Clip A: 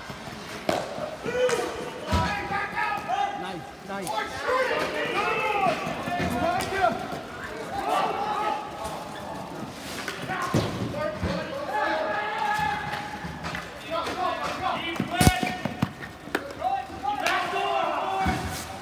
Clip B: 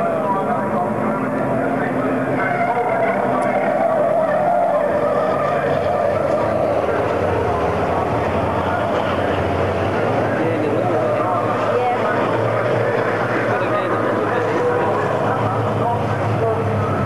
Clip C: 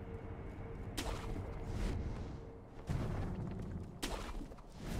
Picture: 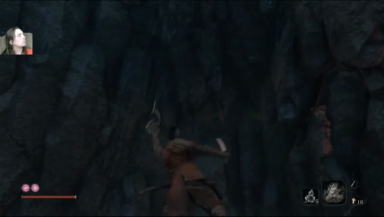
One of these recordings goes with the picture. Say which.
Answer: C